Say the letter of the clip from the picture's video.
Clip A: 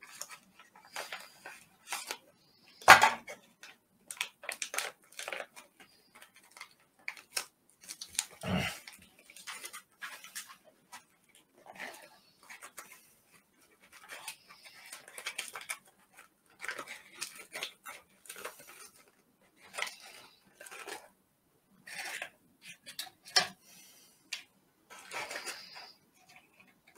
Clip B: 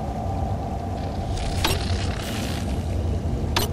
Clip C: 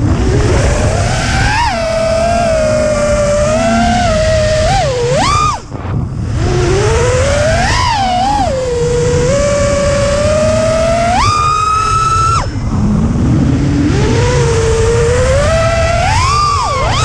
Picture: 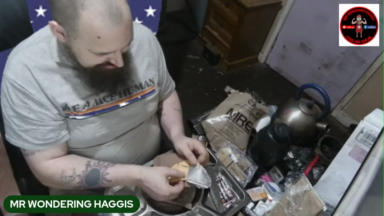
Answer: A